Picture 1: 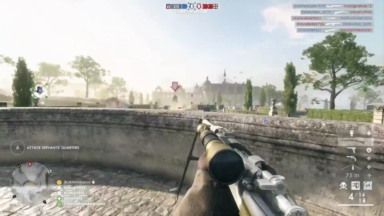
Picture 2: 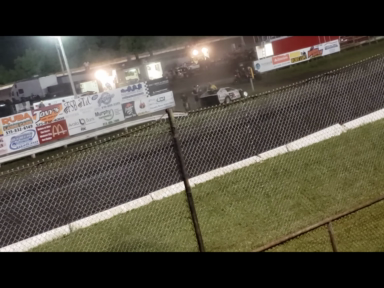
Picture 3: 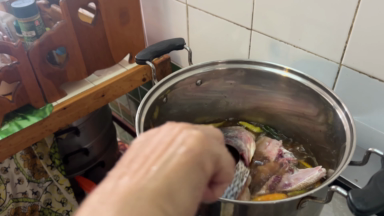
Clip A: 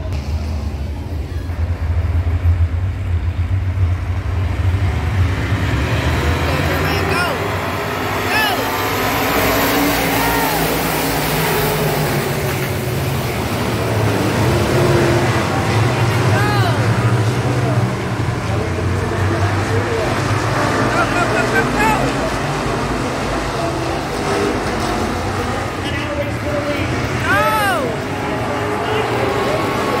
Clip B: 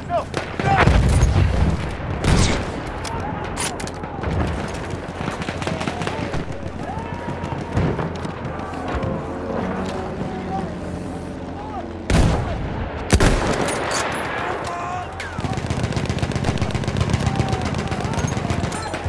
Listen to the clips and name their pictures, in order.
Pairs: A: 2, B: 1